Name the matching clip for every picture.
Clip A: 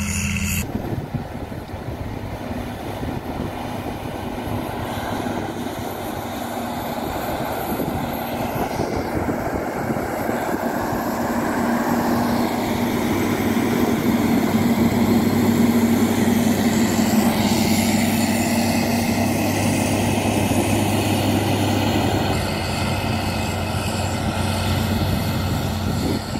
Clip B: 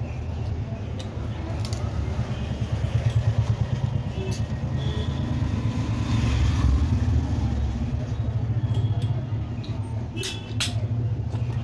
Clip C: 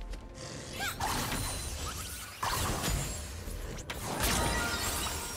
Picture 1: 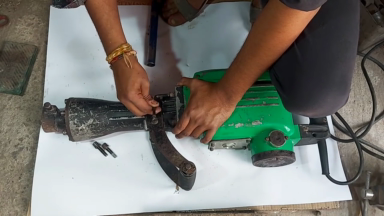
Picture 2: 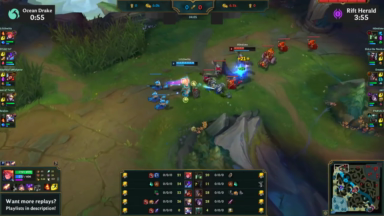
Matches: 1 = B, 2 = C